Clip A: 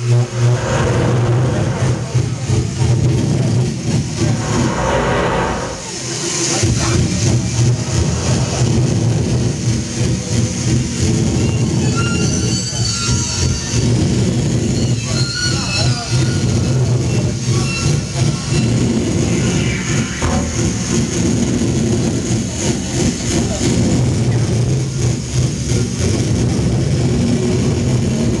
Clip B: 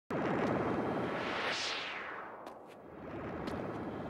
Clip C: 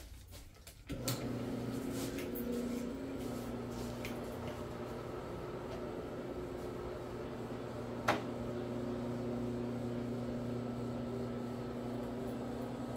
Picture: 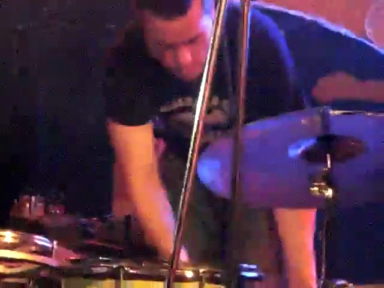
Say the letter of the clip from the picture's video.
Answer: A